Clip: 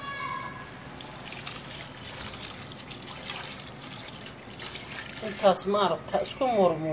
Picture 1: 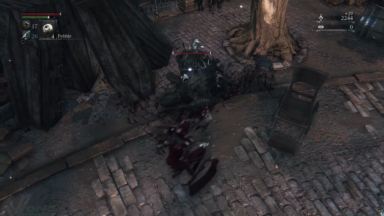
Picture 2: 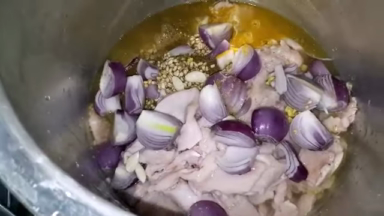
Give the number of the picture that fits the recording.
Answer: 2